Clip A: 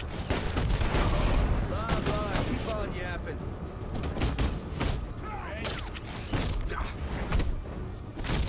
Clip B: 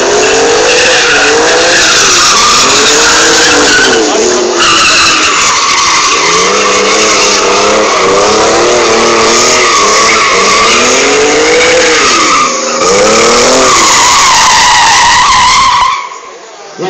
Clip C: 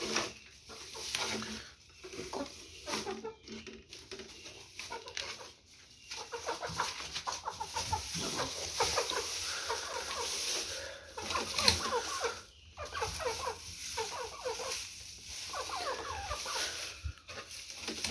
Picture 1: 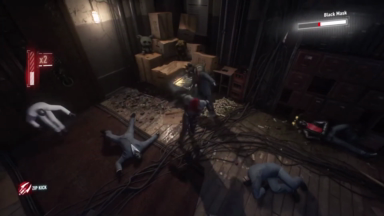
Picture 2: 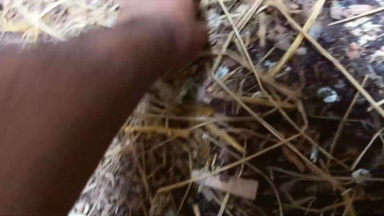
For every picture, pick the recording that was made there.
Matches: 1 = A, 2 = C